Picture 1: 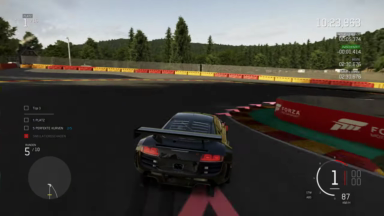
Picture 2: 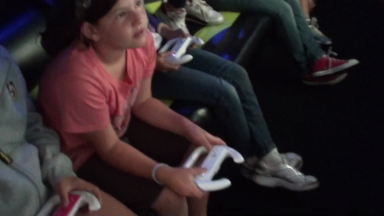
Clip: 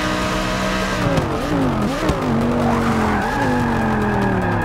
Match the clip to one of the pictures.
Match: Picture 1